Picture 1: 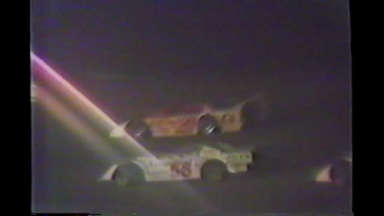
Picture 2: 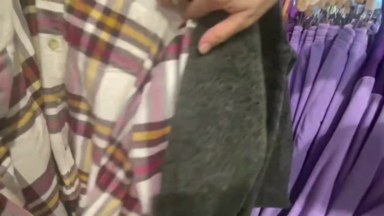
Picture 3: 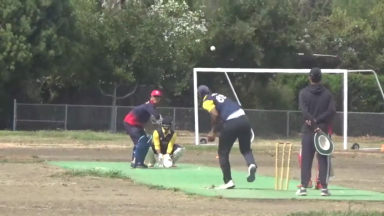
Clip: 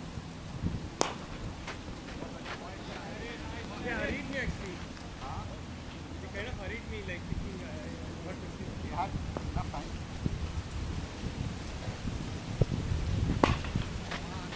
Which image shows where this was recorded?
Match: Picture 3